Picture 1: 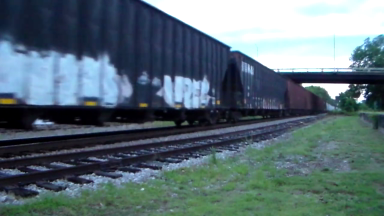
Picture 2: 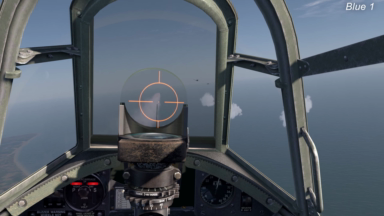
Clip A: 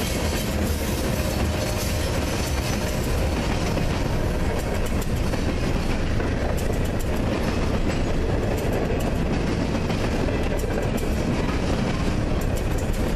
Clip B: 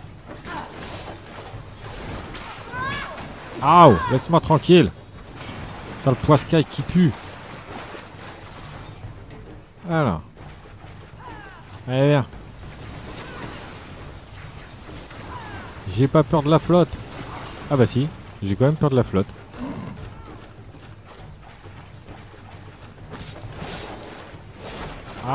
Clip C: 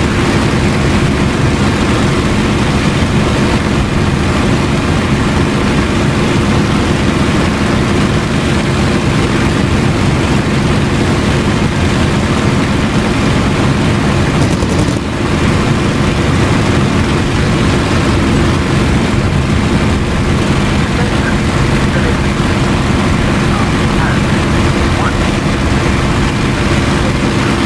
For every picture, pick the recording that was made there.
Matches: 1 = A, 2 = C